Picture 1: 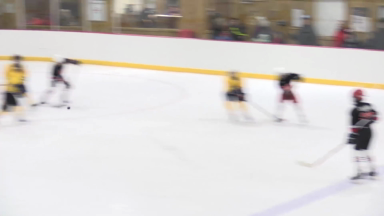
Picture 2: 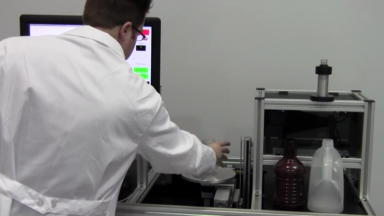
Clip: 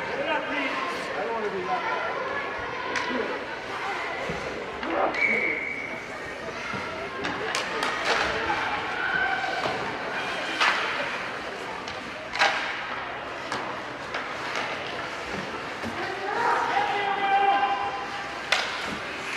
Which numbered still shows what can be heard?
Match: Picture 1